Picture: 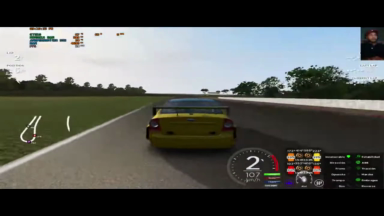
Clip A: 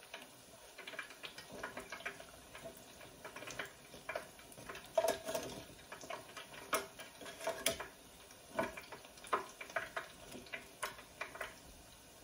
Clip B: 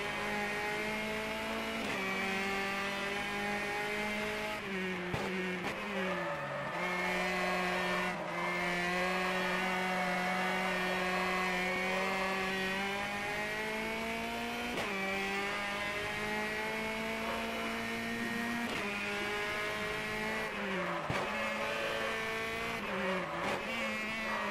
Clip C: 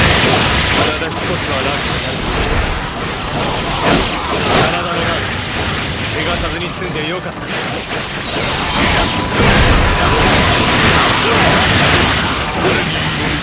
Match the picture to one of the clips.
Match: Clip B